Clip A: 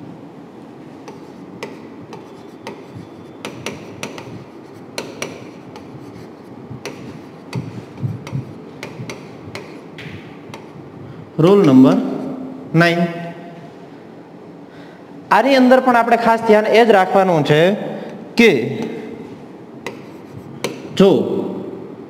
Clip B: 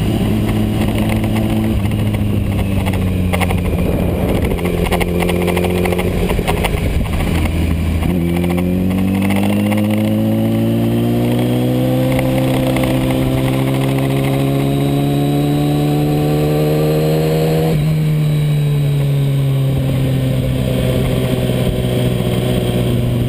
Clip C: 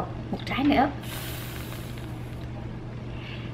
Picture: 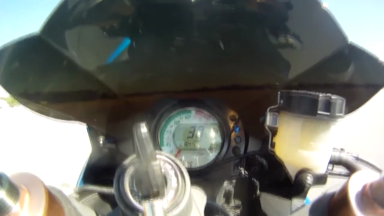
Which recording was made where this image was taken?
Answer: B